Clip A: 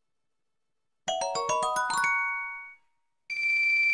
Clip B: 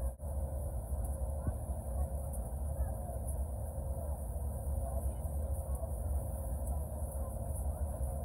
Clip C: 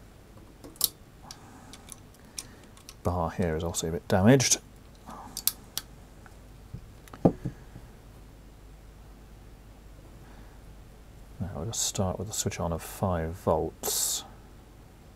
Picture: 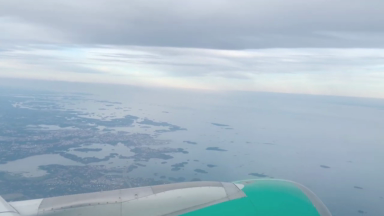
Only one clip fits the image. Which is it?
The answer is B